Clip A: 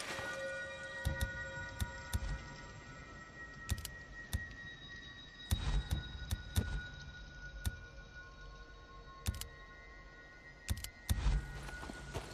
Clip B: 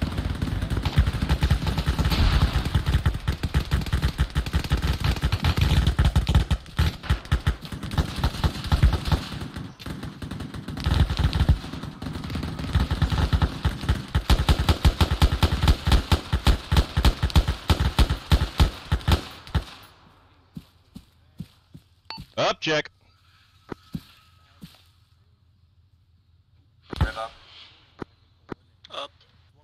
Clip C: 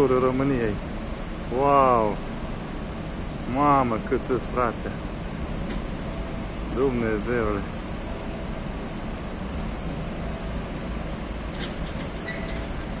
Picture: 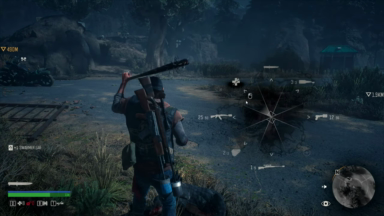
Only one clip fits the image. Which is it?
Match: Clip A